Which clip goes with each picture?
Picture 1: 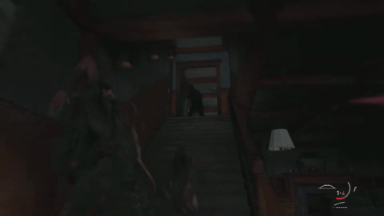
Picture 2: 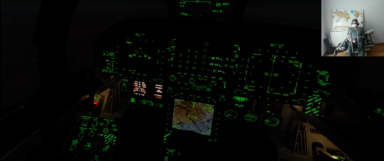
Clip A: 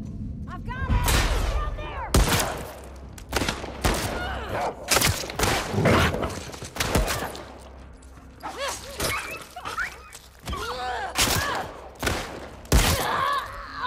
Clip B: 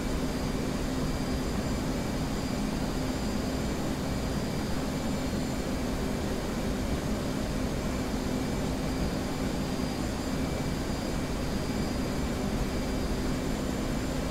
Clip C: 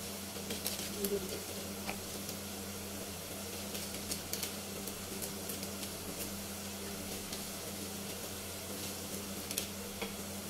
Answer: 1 A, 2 B